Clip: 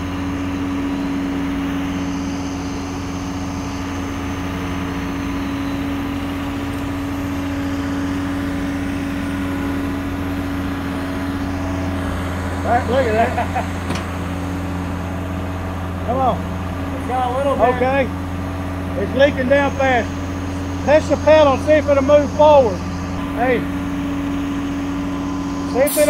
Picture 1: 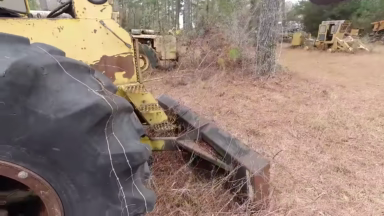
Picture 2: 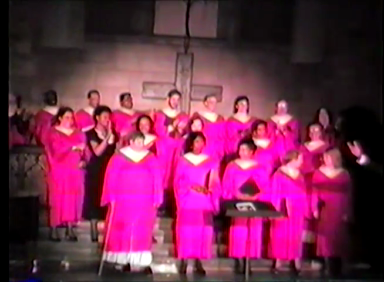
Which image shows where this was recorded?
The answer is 1